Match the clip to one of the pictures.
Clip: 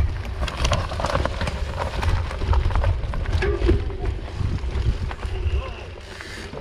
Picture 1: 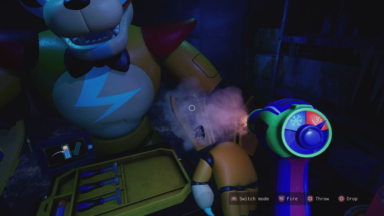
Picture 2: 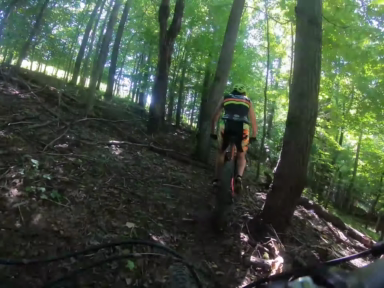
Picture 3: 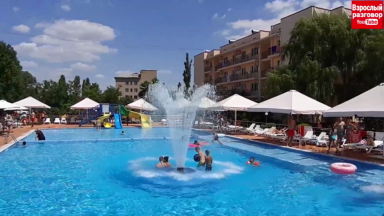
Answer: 2